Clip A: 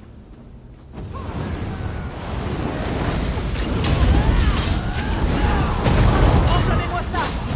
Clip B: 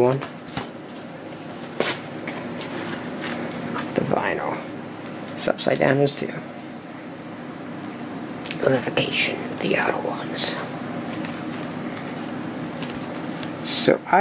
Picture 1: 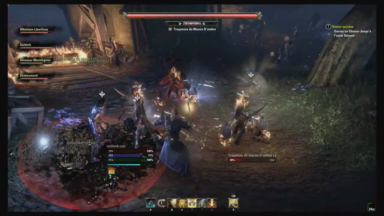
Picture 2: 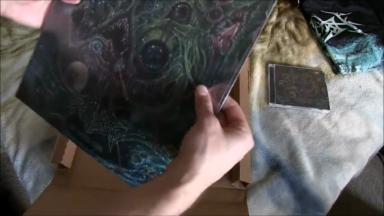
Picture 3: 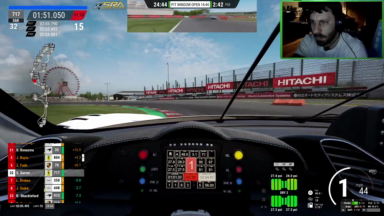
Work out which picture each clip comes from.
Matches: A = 1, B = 2